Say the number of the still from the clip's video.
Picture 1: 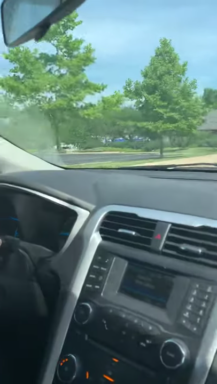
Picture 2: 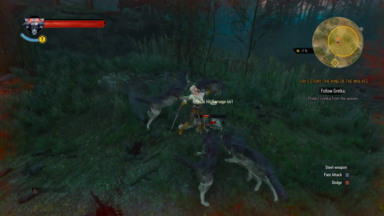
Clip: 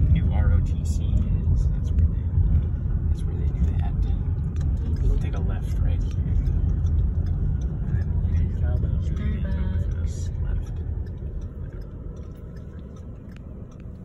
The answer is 1